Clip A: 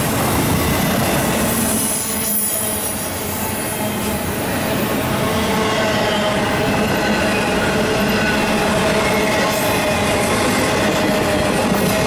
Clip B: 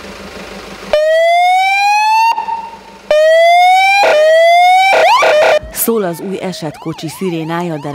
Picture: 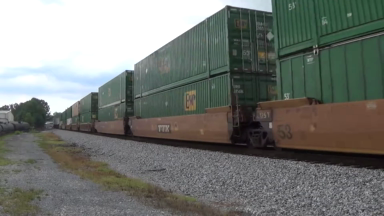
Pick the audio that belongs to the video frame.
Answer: A